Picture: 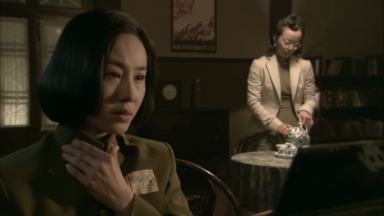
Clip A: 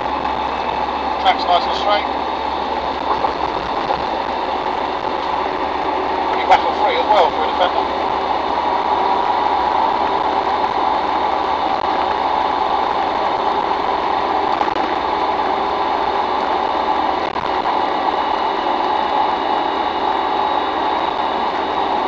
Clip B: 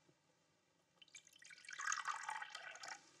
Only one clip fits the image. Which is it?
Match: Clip B